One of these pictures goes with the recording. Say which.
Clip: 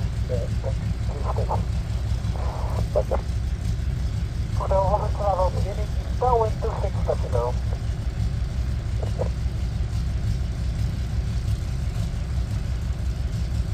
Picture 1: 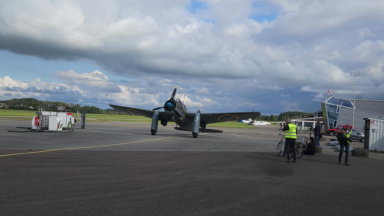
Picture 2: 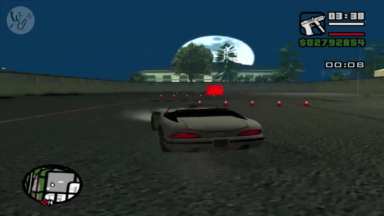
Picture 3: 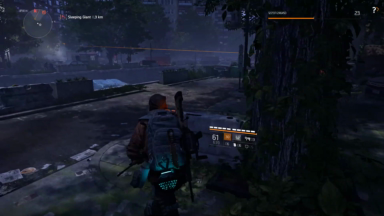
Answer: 1